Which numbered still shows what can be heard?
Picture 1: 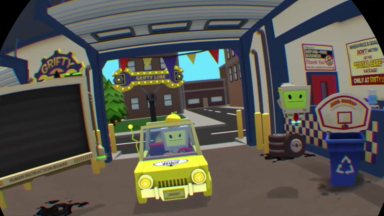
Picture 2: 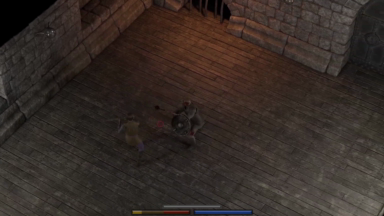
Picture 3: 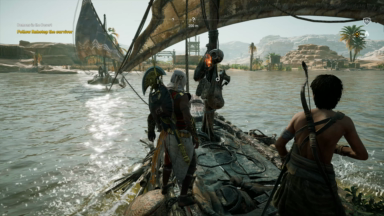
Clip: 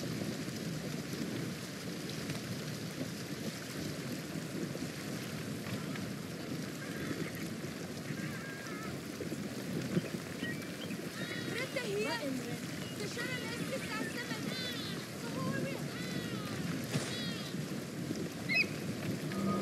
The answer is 3